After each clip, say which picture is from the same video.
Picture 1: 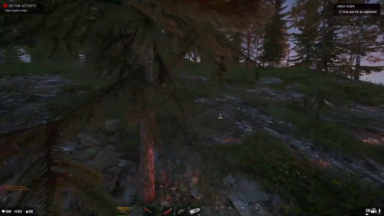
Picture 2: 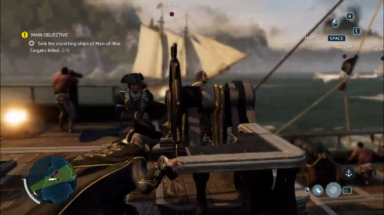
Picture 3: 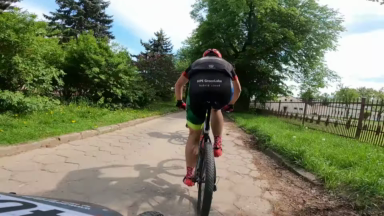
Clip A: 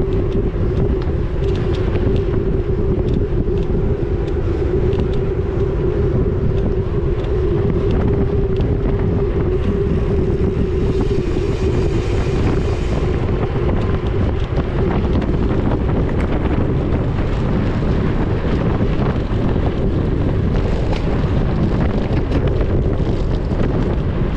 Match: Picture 3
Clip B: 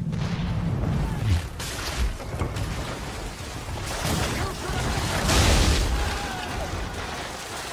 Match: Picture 2